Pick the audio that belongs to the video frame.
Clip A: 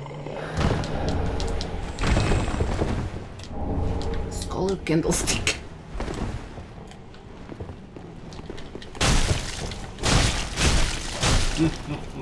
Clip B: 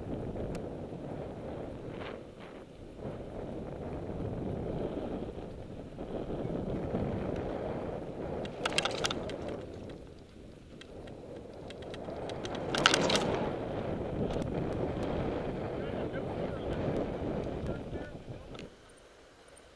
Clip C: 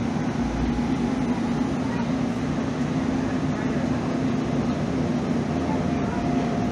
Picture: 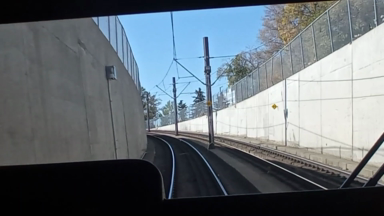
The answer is C